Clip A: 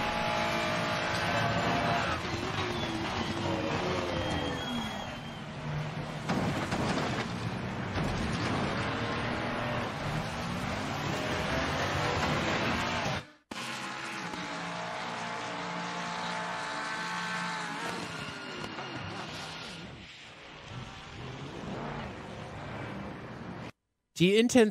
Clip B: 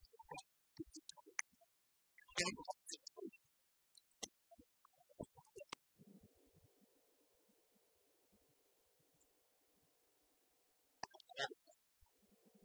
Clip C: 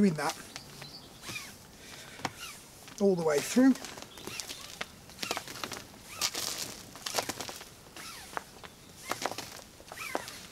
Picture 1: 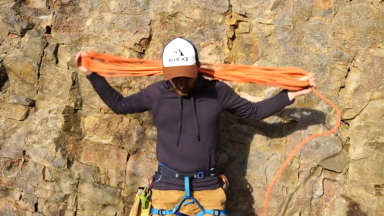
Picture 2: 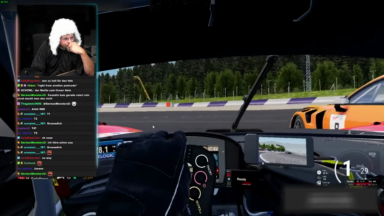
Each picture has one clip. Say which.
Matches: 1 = C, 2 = A